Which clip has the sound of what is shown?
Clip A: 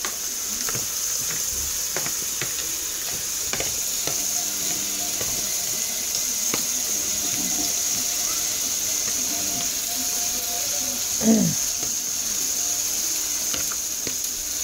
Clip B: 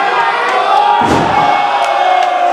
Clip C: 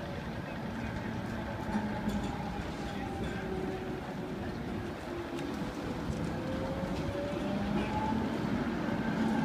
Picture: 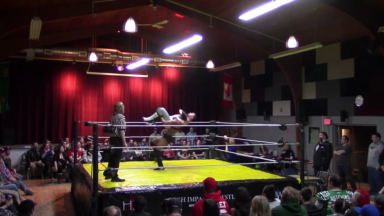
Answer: B